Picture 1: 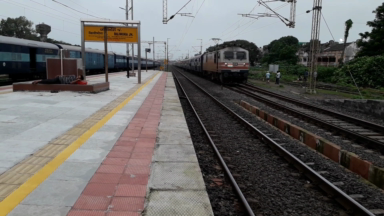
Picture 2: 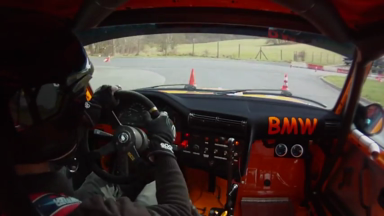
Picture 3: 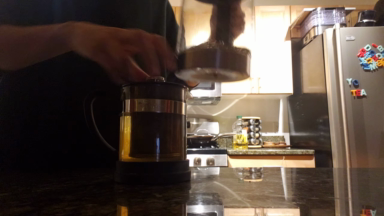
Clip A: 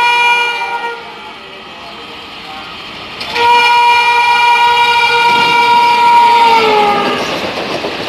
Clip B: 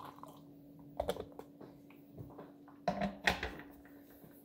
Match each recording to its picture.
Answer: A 1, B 3